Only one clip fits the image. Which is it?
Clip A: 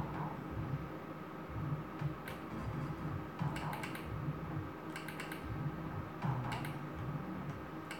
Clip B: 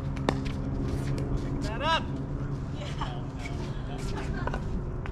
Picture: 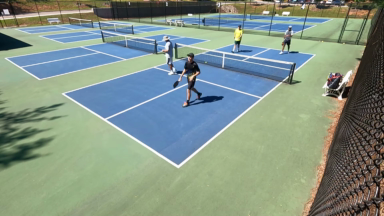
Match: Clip B